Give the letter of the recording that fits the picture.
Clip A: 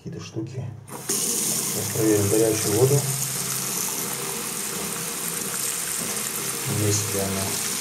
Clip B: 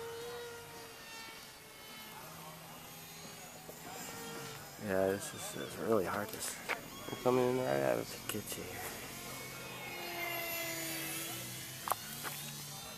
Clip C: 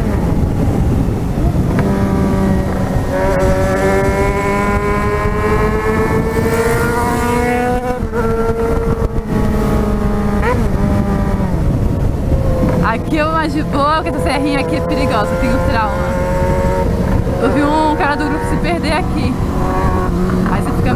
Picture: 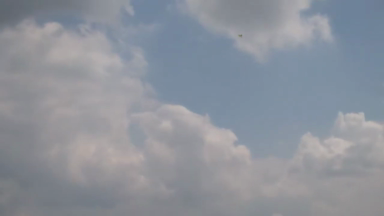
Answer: B